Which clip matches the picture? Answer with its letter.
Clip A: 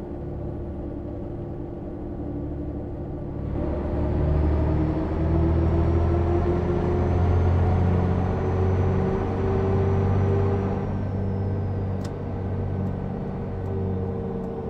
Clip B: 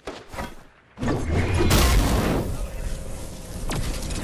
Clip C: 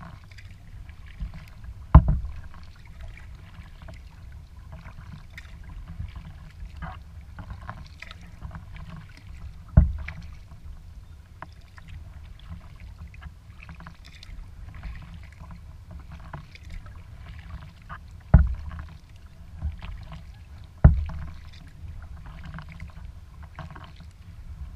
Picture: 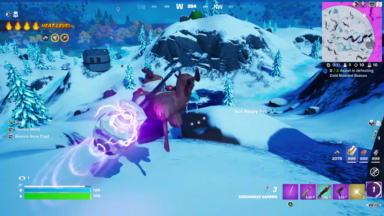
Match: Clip B